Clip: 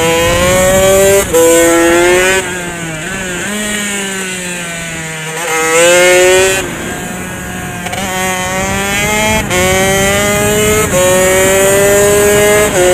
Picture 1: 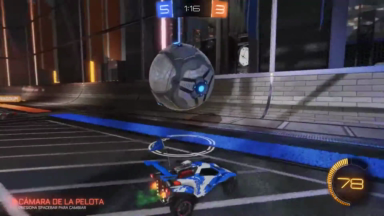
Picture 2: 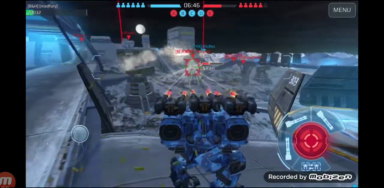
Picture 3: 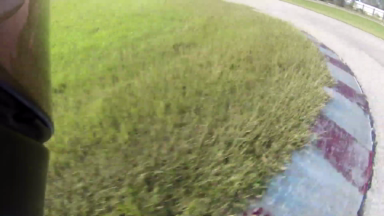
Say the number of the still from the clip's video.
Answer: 3